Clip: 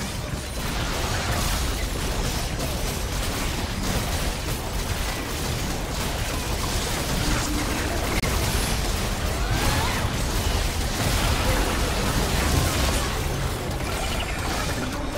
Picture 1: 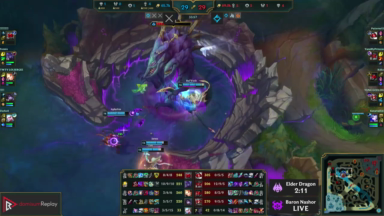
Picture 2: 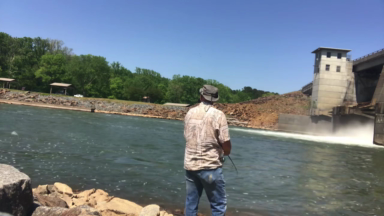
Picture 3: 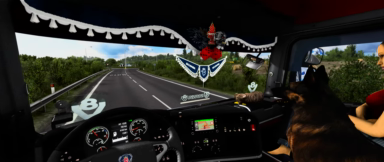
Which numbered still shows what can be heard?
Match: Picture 1